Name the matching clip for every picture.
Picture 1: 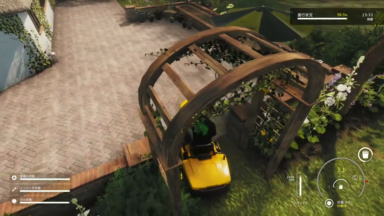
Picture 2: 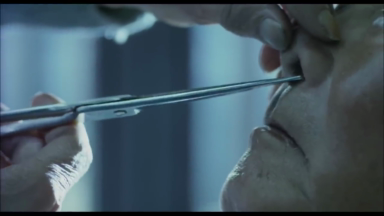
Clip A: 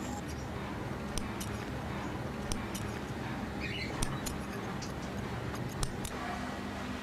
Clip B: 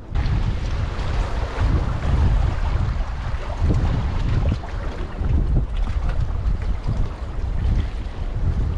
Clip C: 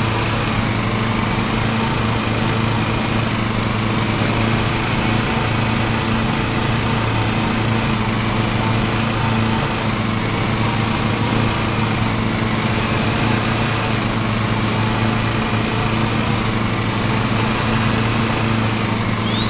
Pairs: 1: C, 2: A